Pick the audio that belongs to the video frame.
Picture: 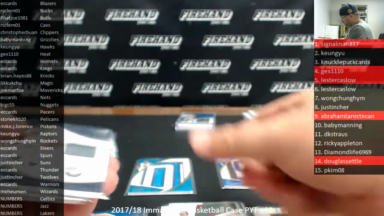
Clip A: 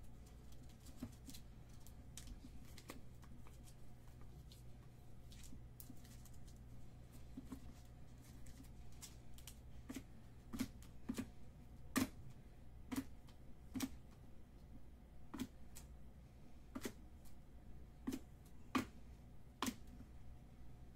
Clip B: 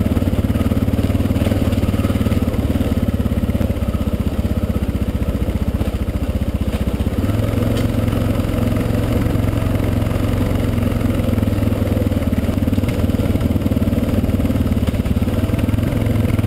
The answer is A